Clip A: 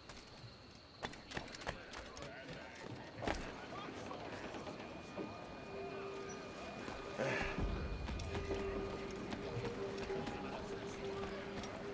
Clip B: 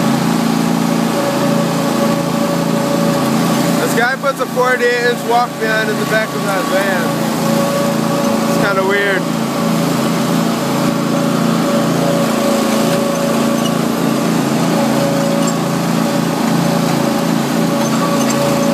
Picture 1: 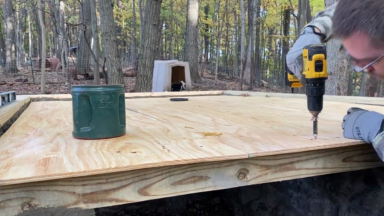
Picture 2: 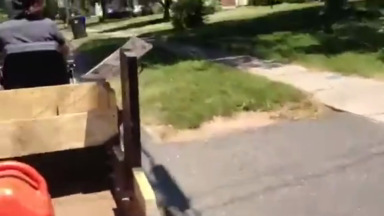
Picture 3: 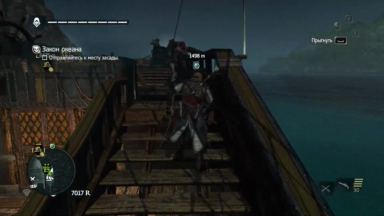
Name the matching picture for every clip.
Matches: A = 3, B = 2